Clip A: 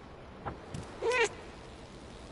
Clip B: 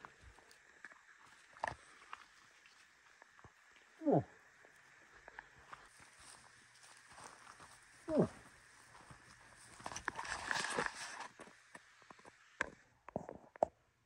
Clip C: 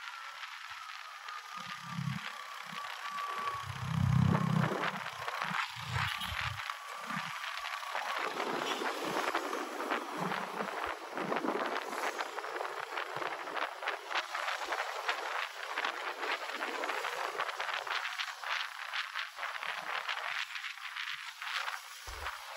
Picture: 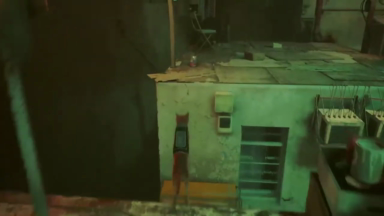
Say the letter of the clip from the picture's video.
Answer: A